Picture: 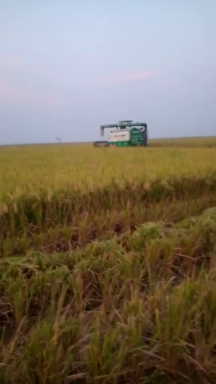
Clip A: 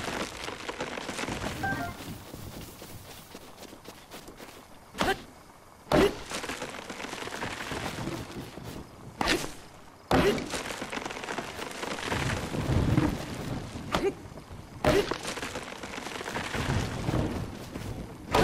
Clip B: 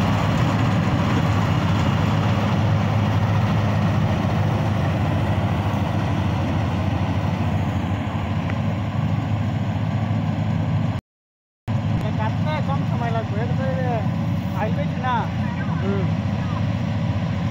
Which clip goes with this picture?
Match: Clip B